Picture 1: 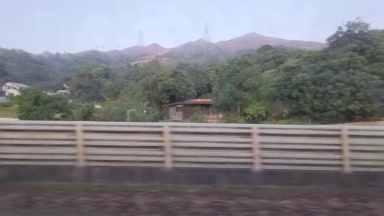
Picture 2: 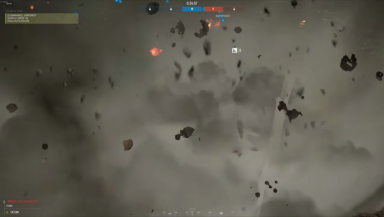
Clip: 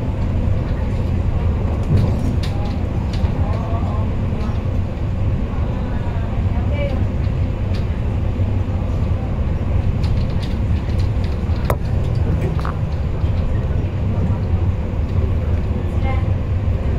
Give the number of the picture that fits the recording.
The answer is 1